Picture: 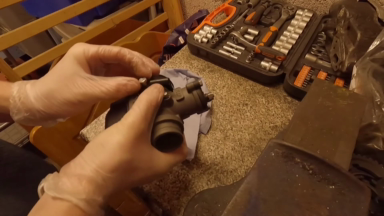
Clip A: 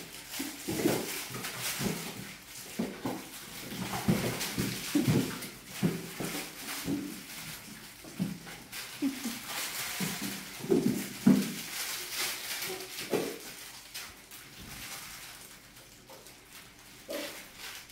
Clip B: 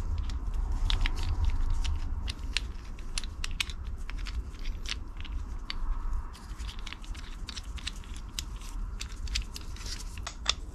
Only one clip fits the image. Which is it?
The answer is B